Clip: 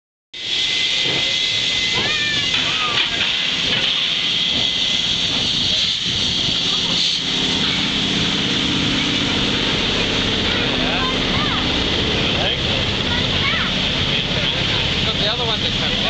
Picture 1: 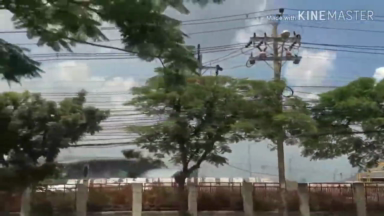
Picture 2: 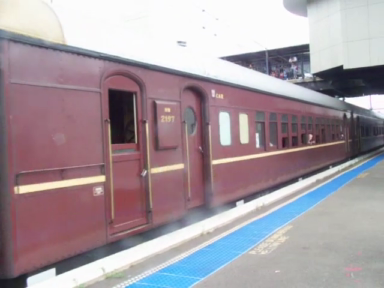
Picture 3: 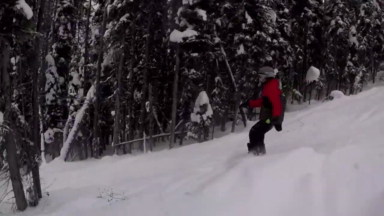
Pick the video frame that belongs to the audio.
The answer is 2